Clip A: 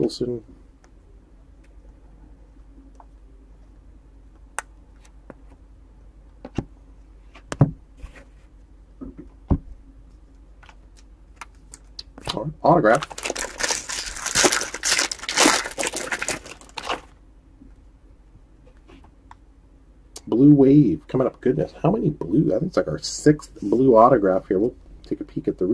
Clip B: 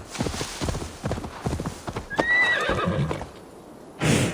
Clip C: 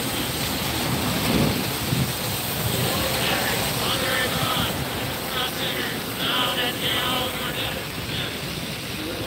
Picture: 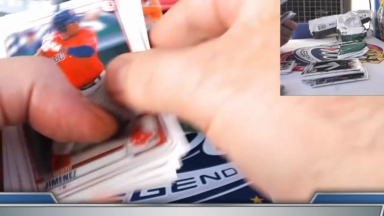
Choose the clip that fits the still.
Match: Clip A